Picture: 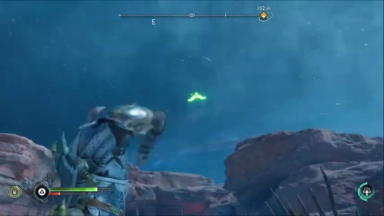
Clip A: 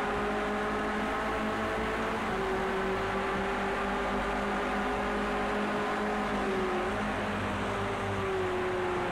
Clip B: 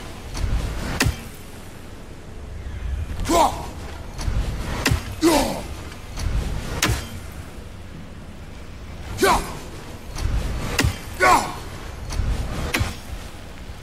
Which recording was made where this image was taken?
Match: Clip B